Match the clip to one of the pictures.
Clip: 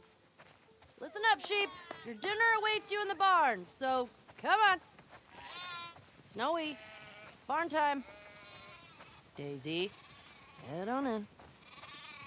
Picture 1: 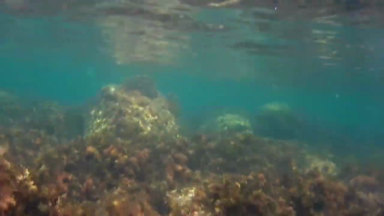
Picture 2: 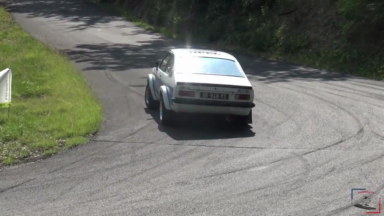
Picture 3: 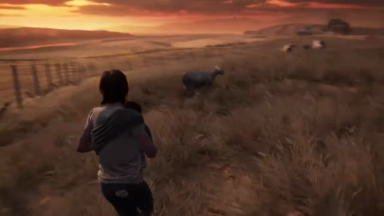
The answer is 3